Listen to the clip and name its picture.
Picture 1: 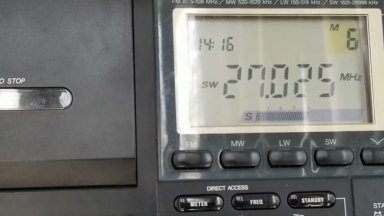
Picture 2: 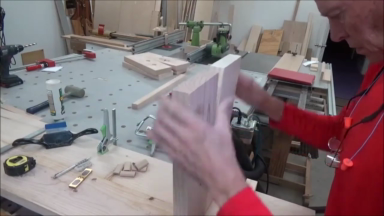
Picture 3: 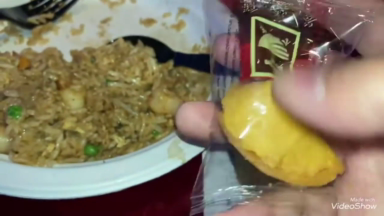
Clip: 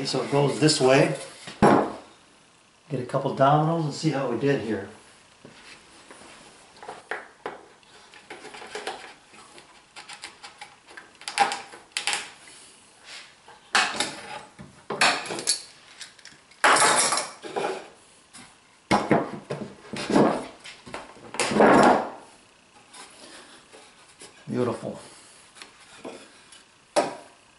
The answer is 2